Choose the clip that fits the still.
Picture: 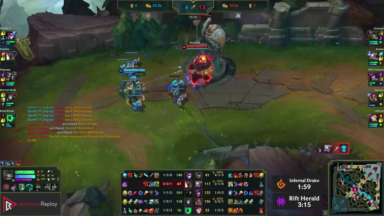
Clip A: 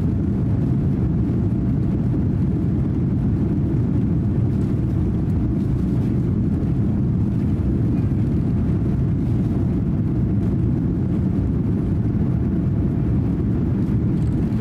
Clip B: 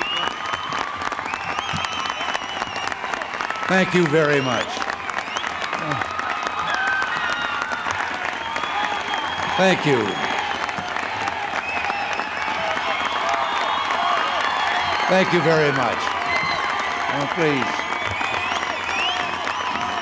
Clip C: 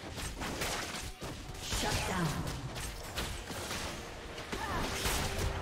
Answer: C